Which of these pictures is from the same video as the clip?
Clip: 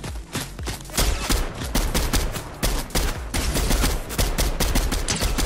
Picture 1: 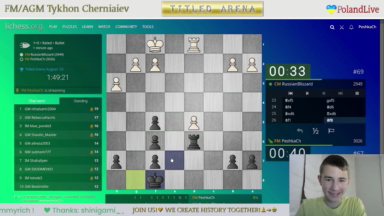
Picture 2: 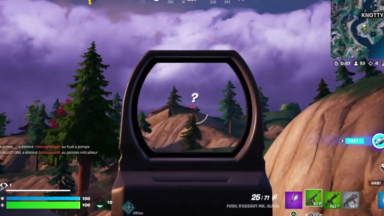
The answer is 2